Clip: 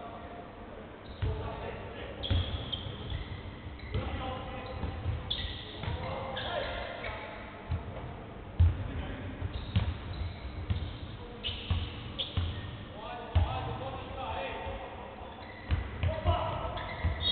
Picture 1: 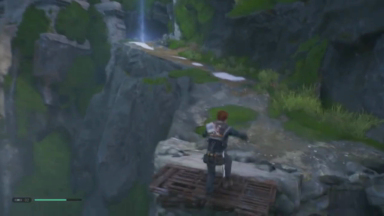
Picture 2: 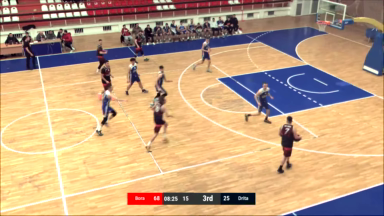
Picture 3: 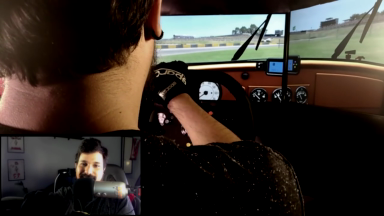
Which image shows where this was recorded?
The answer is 2